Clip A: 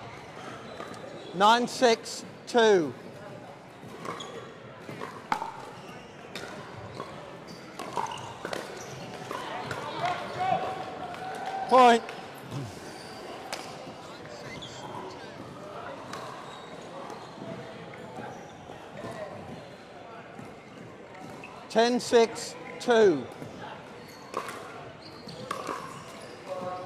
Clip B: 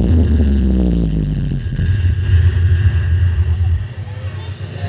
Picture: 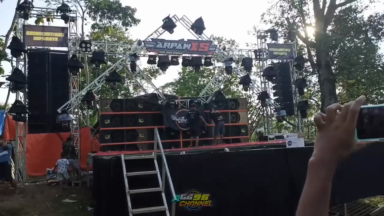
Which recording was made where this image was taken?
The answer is B